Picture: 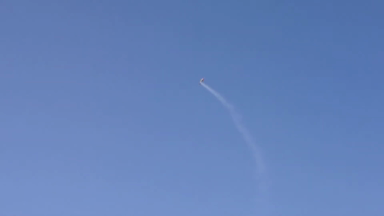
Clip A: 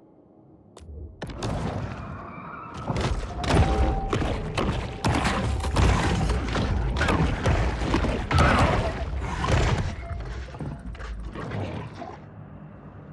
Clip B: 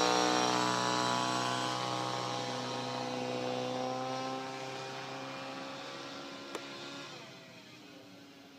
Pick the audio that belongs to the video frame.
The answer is B